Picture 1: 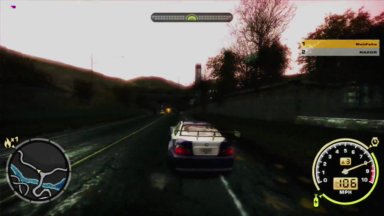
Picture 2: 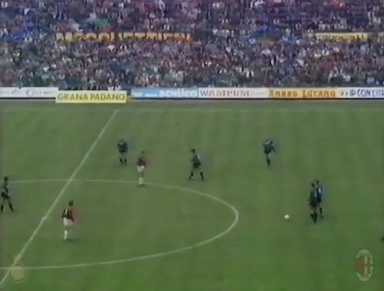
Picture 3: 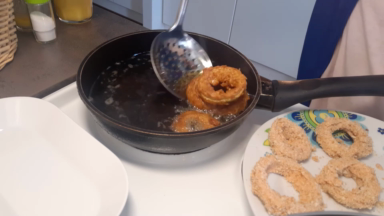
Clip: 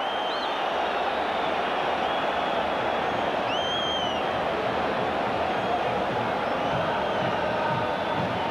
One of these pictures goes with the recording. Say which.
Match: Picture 2